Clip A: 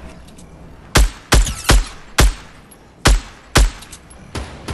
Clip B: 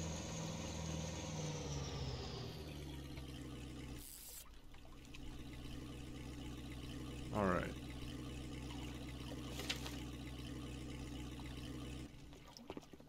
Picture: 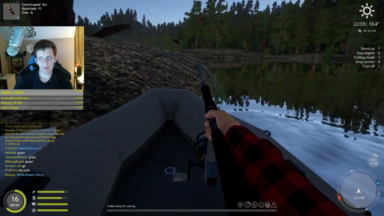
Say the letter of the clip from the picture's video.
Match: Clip B